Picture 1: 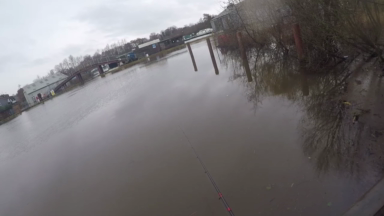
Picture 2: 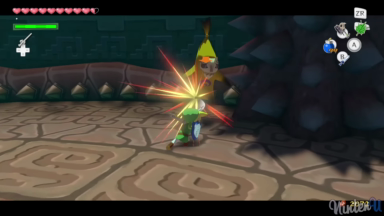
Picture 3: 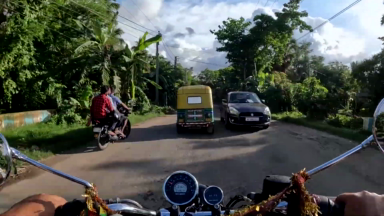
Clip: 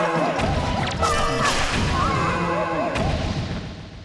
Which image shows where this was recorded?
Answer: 2